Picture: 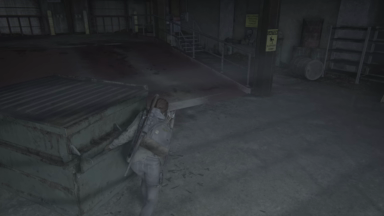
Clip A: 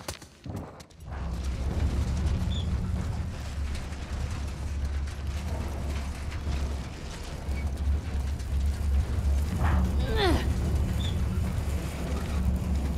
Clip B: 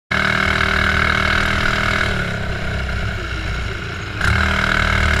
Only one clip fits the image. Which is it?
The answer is A